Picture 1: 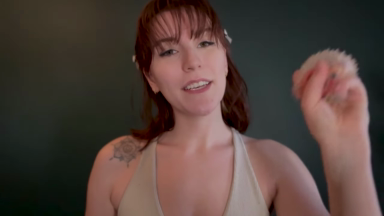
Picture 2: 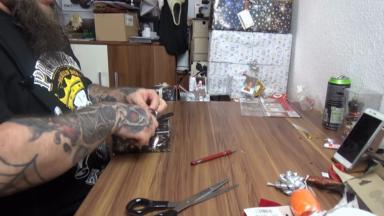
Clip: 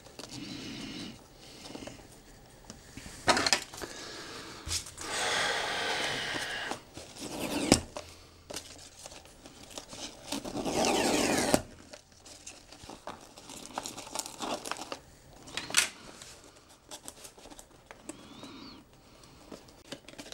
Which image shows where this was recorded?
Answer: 2